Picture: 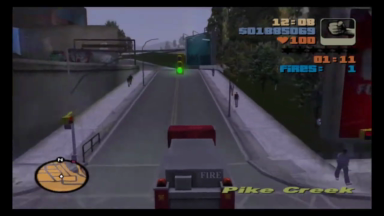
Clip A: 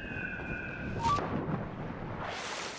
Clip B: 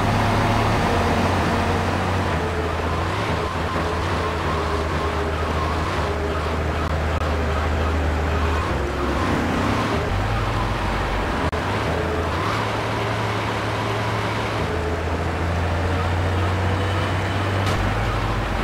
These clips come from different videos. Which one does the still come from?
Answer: B